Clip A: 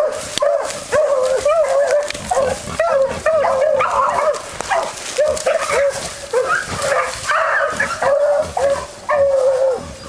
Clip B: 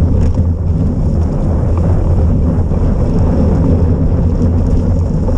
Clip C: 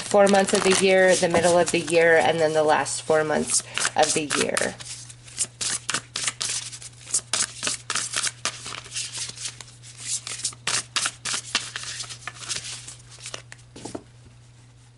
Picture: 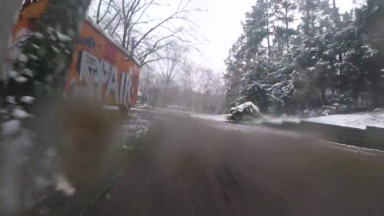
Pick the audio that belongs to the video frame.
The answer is B